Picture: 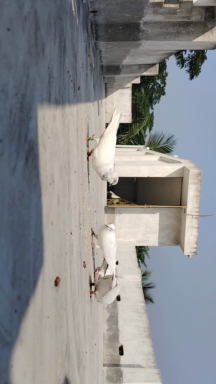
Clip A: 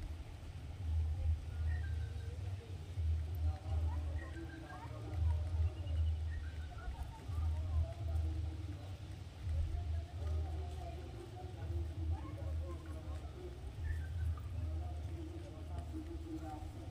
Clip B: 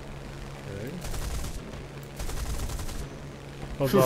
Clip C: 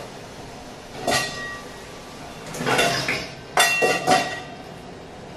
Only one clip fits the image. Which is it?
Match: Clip A